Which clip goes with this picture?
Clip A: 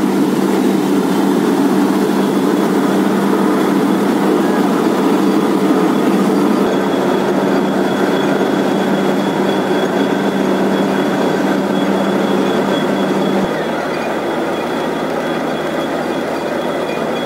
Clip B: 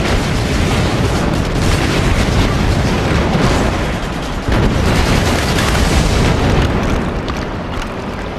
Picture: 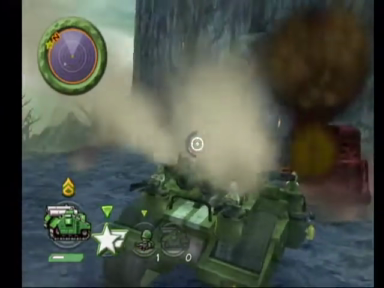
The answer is B